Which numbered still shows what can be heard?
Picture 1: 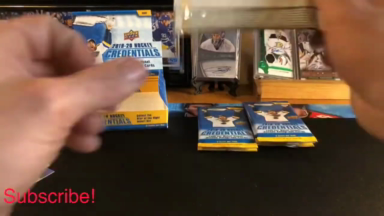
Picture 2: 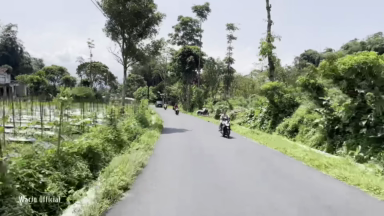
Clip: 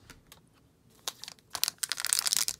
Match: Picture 1